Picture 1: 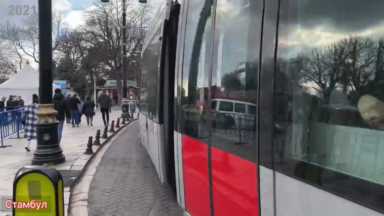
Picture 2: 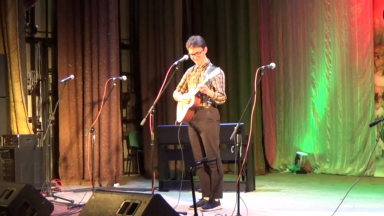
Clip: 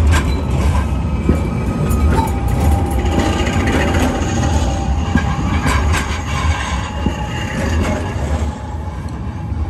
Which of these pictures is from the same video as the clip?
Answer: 1